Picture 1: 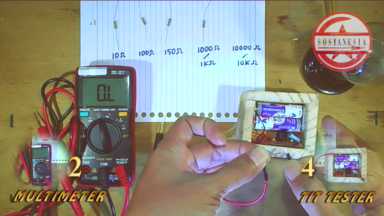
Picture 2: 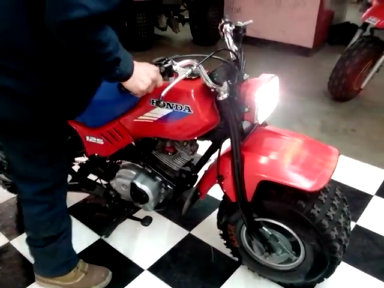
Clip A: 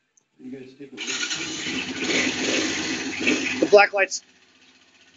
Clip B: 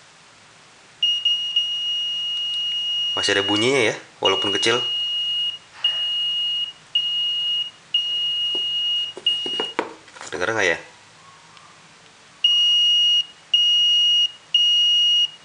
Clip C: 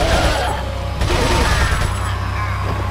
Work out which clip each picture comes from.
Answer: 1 B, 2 A